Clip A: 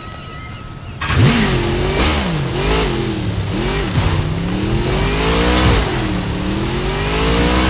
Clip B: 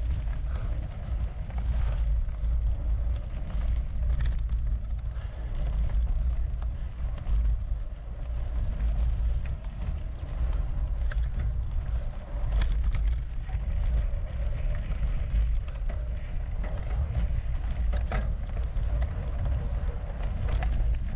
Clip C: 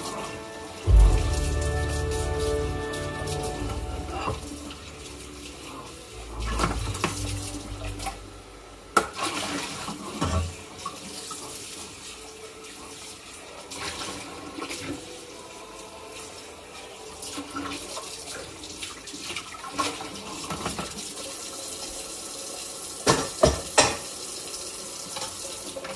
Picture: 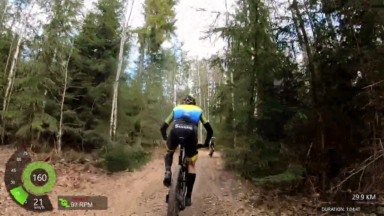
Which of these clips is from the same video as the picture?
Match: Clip B